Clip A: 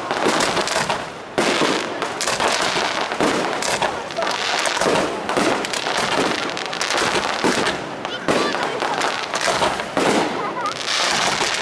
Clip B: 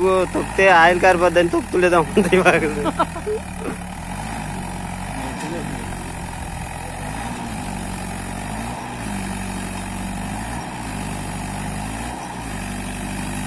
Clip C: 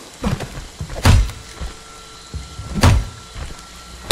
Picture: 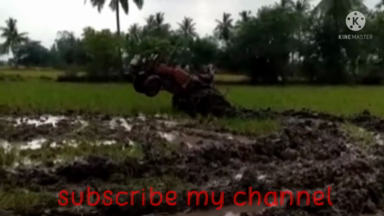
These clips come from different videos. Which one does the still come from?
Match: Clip B